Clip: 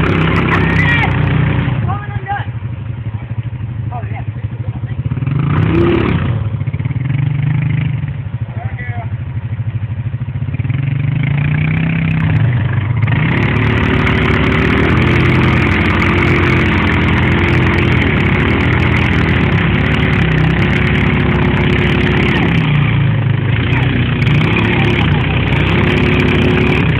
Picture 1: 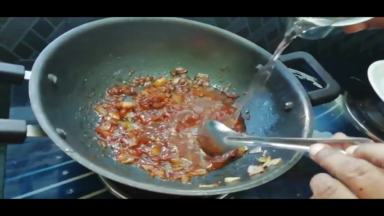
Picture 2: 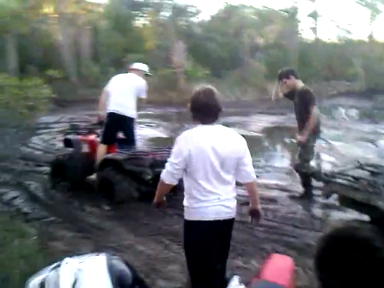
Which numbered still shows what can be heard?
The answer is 2